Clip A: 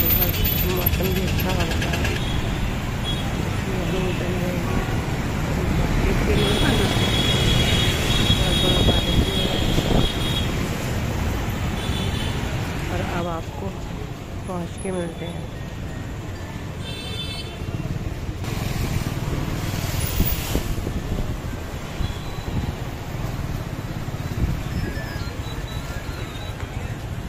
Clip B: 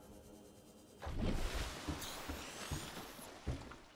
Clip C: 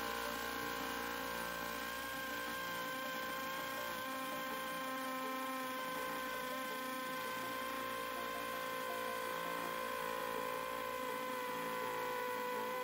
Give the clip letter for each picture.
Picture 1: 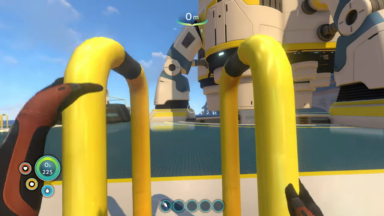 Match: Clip B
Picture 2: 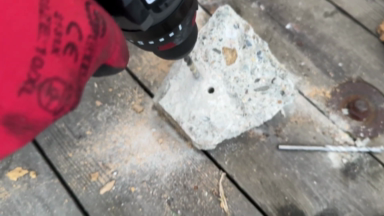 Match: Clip C